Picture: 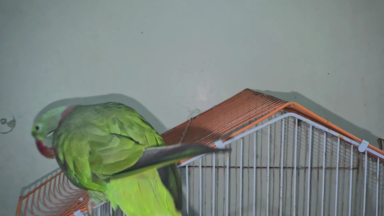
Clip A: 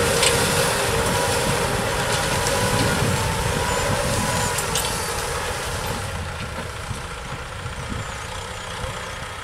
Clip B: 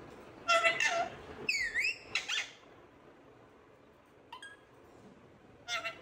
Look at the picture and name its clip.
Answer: B